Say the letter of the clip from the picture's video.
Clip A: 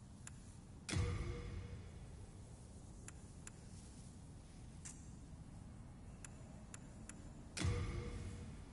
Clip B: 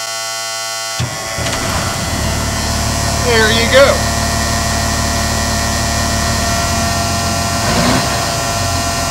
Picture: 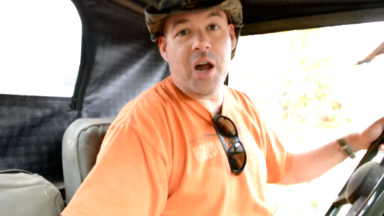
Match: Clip B